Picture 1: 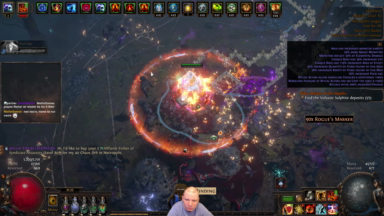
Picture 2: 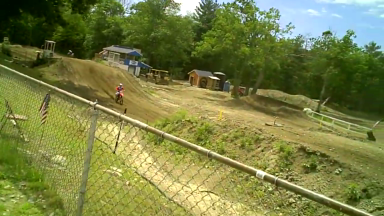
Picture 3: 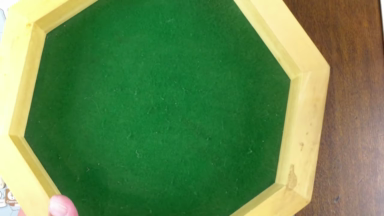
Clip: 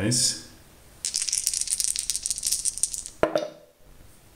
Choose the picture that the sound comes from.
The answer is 3